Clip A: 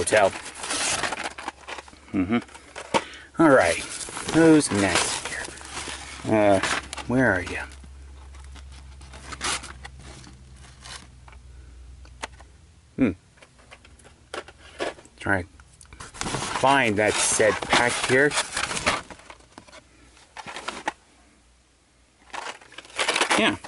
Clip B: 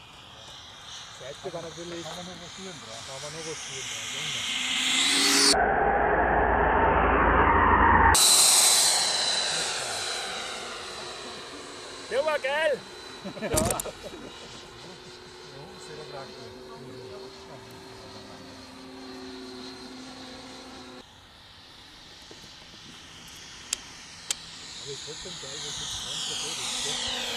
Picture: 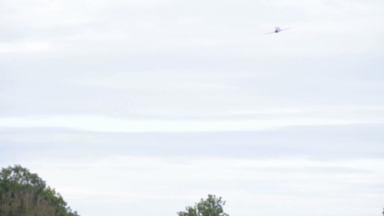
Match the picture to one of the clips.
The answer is B